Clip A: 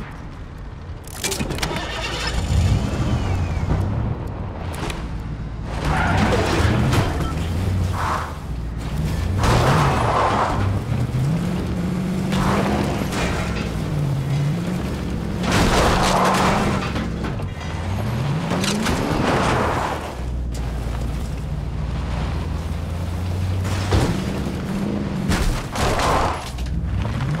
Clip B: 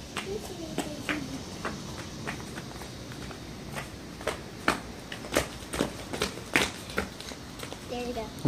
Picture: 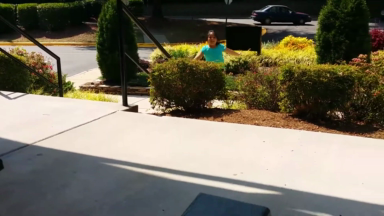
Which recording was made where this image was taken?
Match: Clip B